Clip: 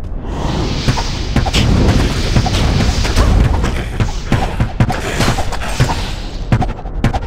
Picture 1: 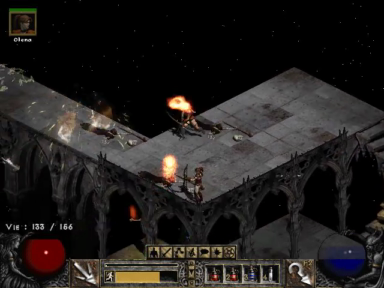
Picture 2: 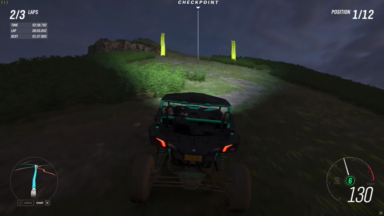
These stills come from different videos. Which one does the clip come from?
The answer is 1